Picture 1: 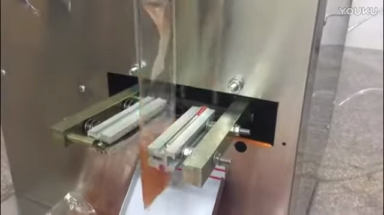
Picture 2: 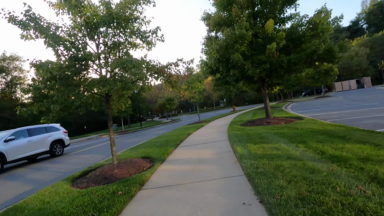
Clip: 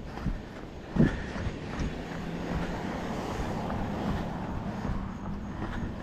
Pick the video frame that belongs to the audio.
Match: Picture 2